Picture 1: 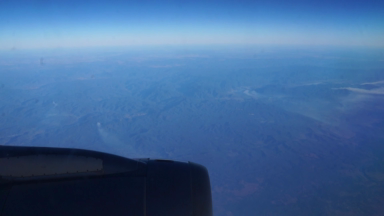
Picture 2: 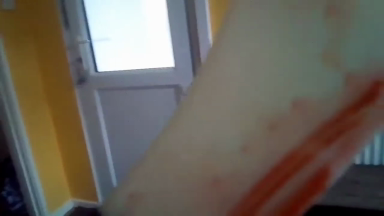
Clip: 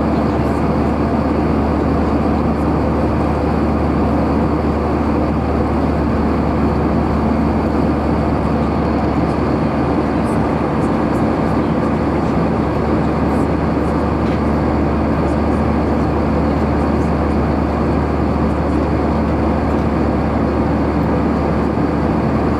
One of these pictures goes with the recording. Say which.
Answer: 1